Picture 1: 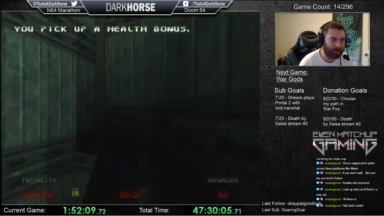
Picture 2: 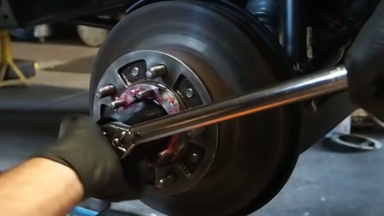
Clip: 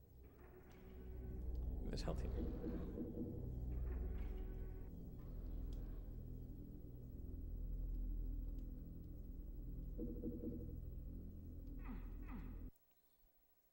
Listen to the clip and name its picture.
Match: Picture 1